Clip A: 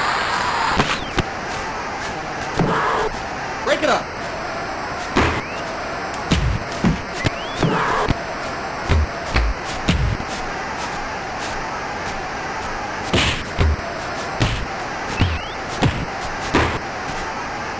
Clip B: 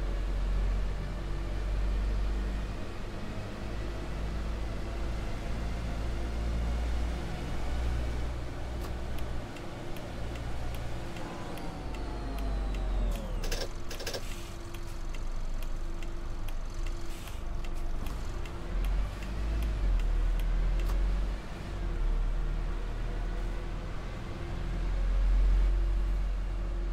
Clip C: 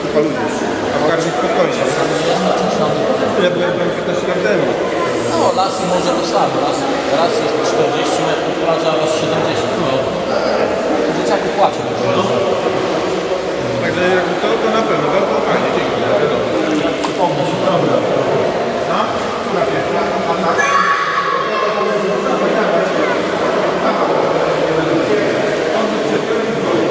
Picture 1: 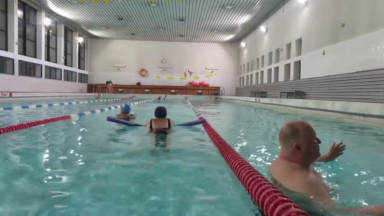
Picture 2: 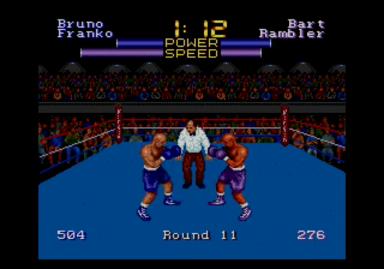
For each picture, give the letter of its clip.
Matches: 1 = C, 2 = A